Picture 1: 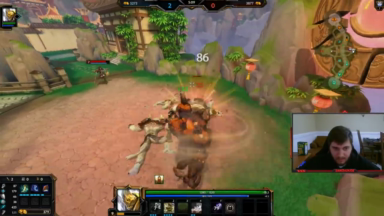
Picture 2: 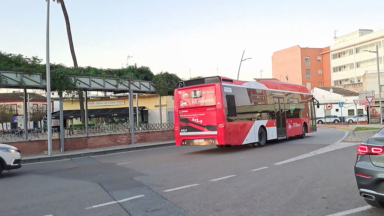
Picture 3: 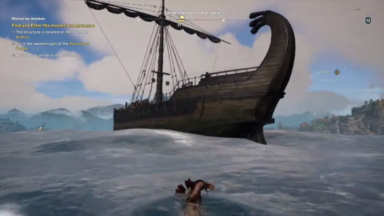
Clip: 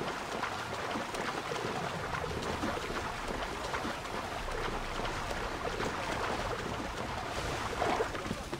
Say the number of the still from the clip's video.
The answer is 3